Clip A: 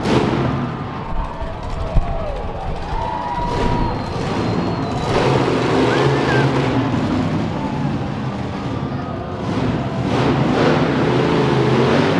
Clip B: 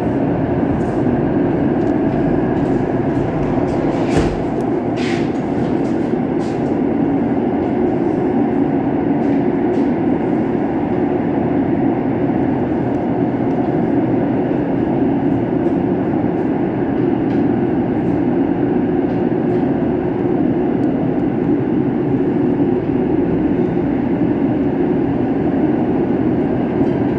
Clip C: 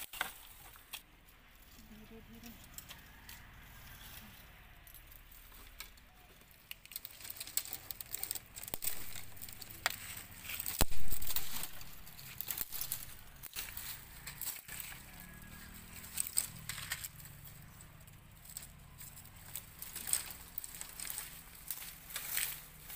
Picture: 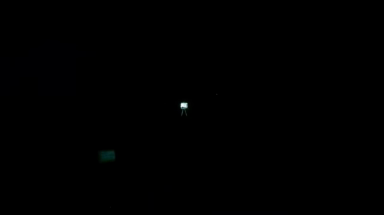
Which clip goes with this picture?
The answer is B